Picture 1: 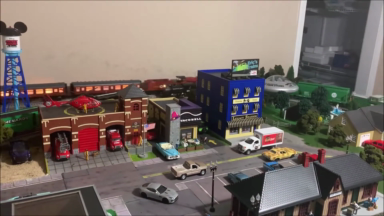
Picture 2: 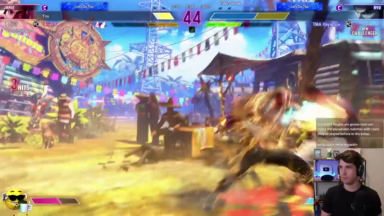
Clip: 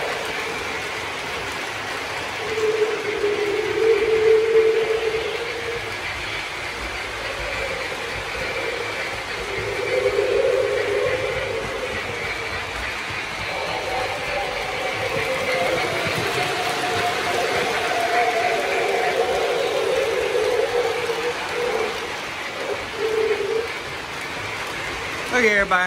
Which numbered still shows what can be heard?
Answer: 1